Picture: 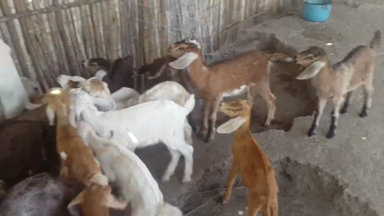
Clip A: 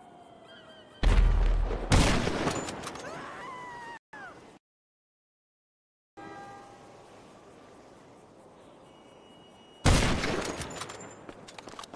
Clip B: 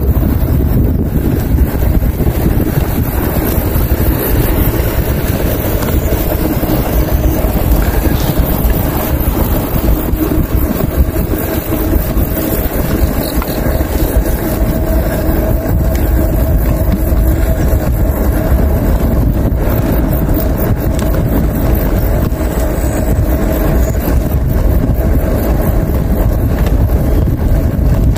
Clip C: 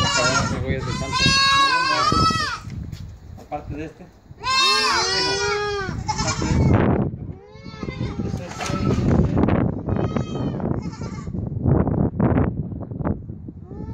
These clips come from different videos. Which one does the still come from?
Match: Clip C